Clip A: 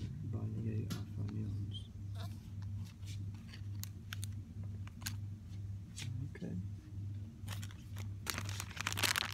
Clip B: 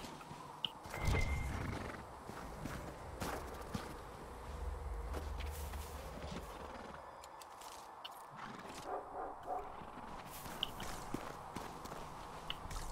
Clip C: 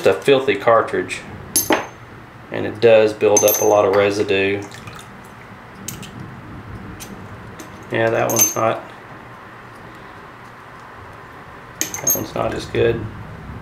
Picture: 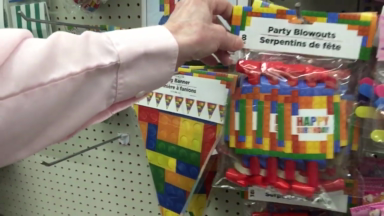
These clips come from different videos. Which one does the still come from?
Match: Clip A